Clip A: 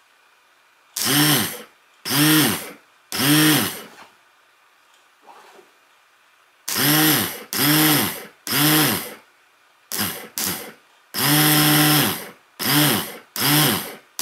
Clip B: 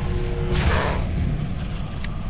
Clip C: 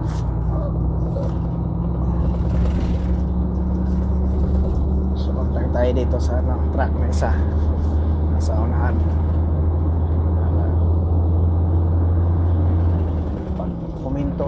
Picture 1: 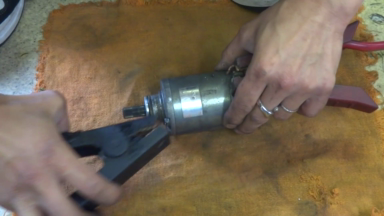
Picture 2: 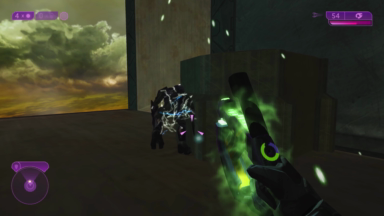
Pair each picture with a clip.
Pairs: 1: A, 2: B